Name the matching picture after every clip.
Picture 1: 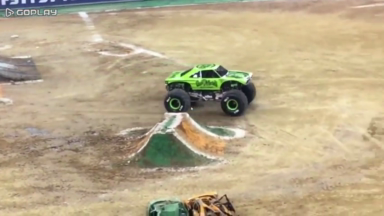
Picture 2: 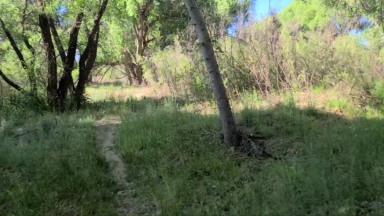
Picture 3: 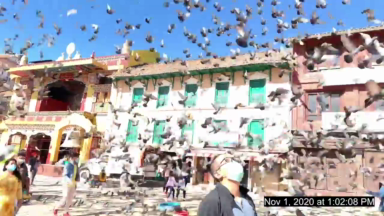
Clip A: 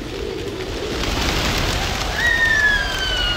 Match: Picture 3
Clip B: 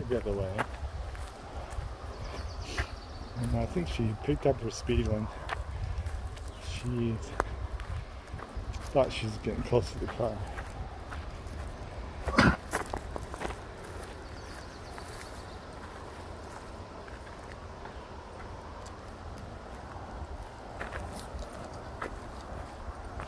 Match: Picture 2